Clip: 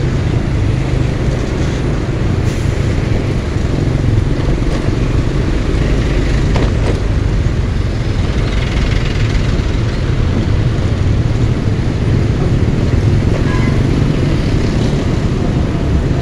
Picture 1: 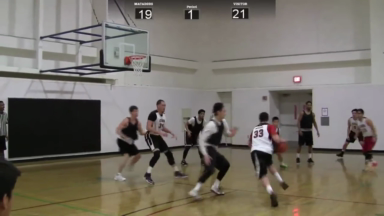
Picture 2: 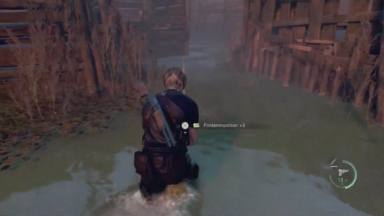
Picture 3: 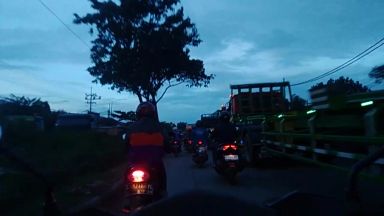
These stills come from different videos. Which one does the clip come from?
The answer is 3